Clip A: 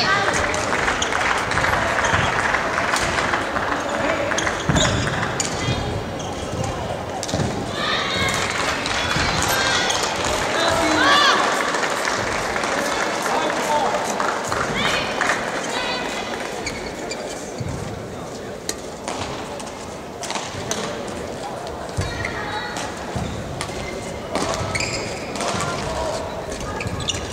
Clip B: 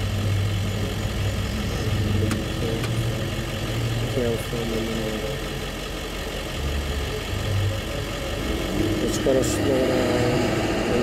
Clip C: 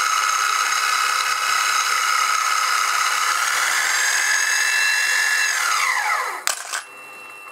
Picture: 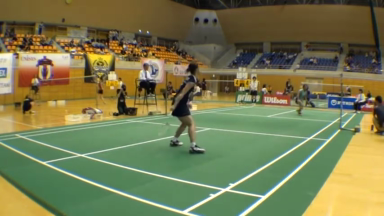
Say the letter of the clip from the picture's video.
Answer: A